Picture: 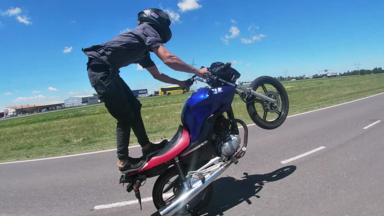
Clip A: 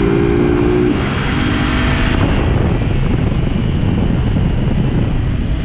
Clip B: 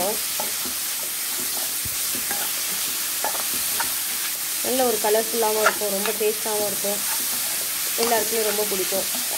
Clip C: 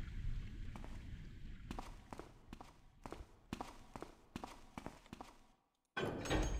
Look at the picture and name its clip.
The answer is A